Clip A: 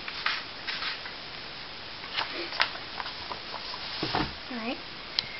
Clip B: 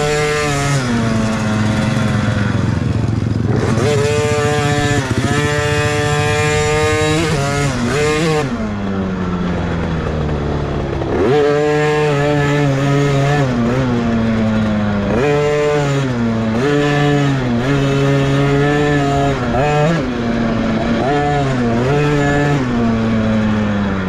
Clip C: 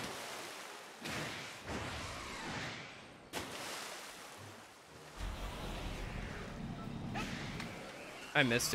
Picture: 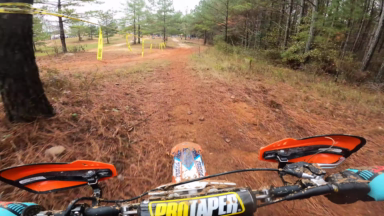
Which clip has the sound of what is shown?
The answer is B